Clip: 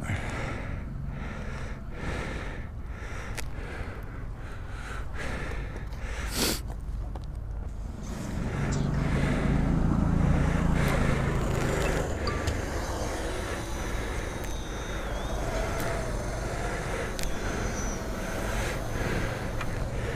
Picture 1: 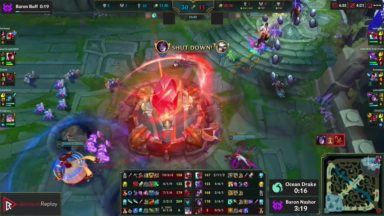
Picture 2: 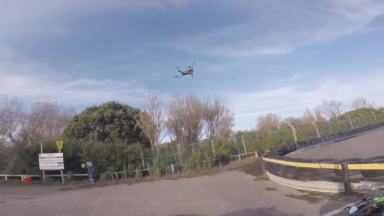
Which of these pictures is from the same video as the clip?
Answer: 2